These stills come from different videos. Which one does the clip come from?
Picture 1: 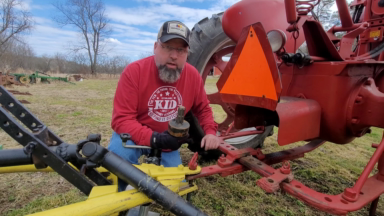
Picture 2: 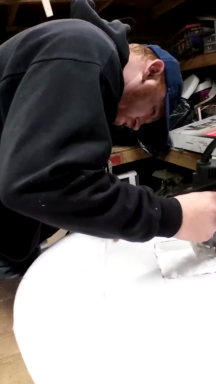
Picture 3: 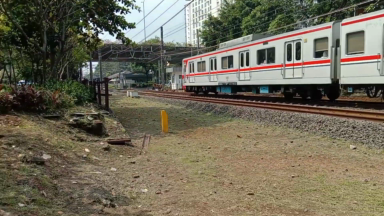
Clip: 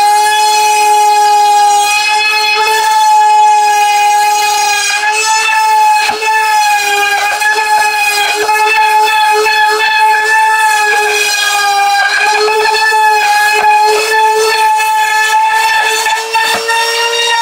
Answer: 2